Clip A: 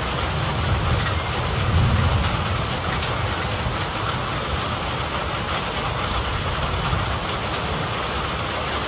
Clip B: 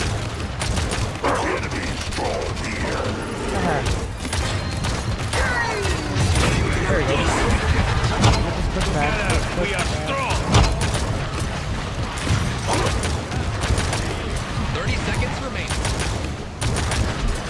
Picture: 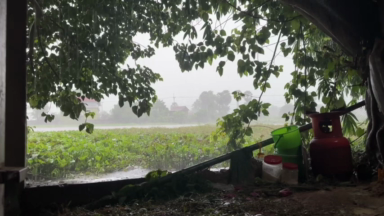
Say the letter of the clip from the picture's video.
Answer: A